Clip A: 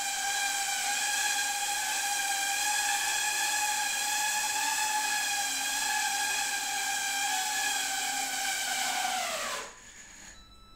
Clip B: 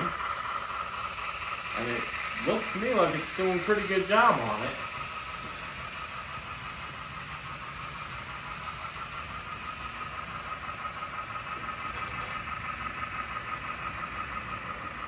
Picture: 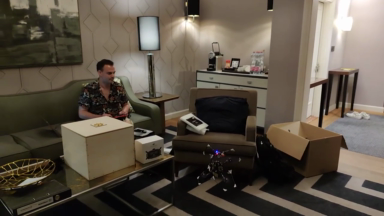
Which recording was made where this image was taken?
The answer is A